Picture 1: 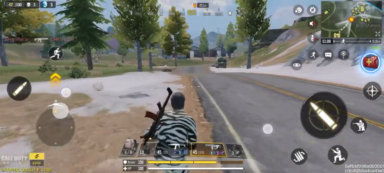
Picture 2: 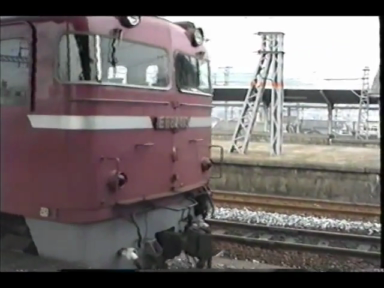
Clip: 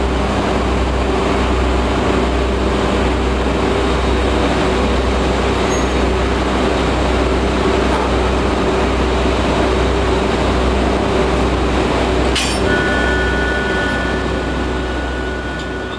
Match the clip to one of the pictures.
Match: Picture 2